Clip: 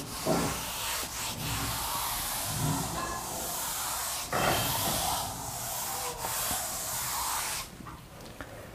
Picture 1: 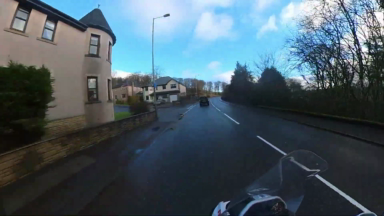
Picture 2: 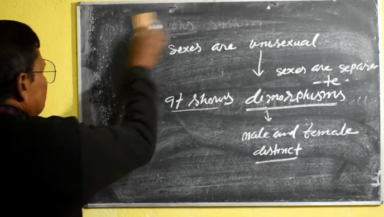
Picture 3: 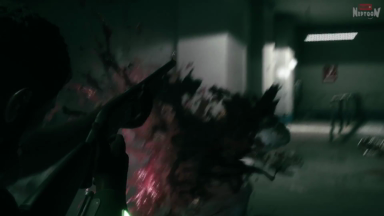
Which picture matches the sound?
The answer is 2